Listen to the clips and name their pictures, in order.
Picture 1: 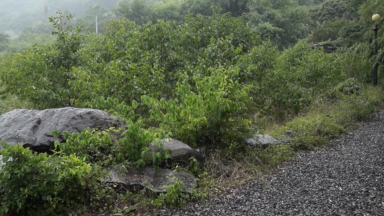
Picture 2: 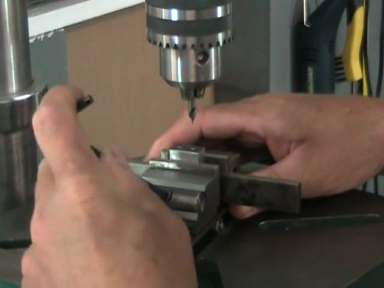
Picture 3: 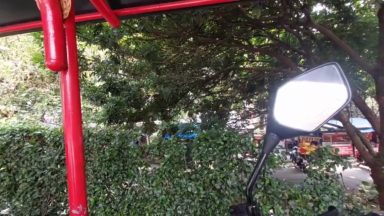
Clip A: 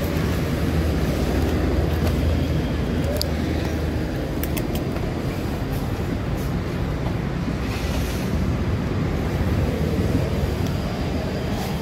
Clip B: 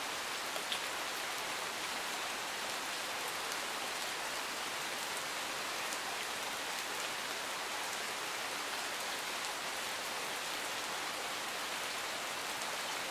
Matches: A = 3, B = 1